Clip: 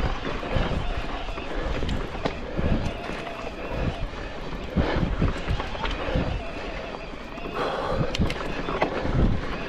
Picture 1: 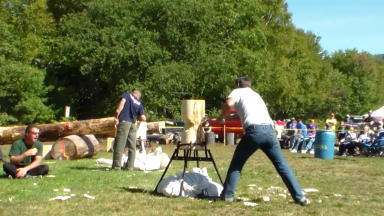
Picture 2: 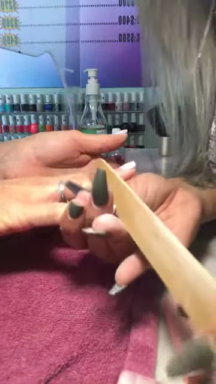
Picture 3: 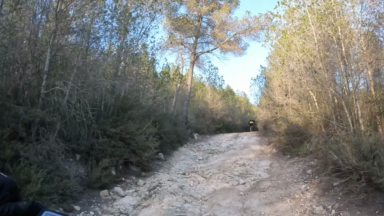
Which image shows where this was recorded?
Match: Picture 3